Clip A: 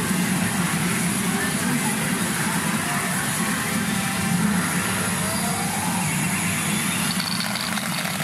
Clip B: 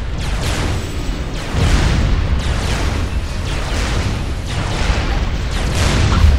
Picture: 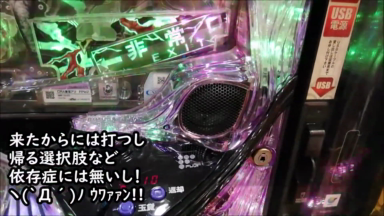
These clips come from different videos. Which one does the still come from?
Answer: A